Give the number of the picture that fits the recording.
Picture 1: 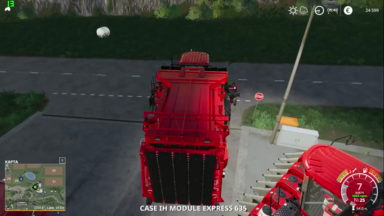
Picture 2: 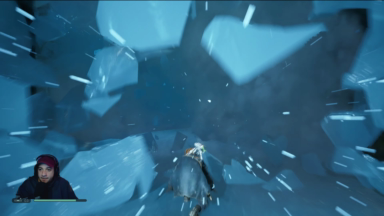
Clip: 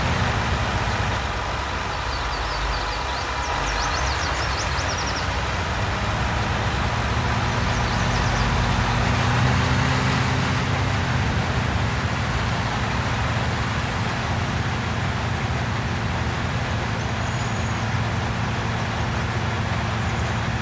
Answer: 1